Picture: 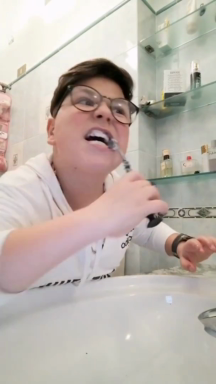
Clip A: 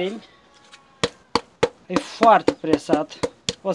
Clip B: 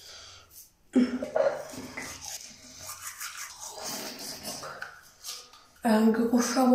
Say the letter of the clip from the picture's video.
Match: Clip B